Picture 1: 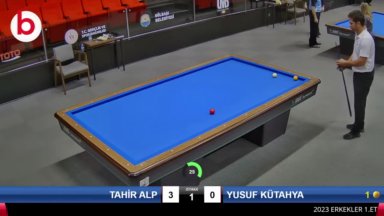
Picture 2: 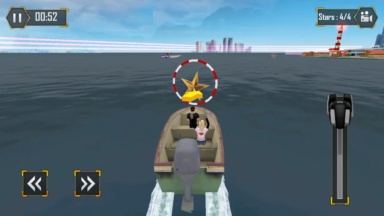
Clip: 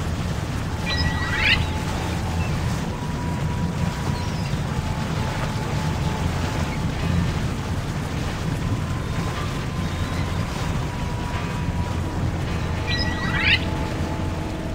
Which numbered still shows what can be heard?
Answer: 2